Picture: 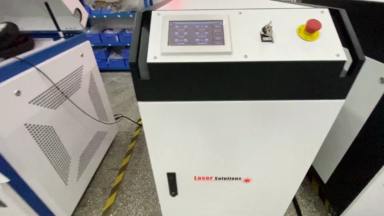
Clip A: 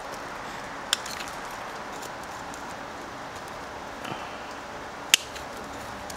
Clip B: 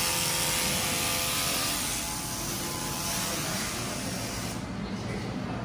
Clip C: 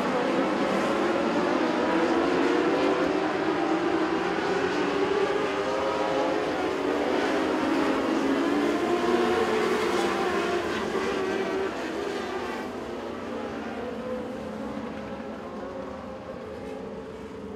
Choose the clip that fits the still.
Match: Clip B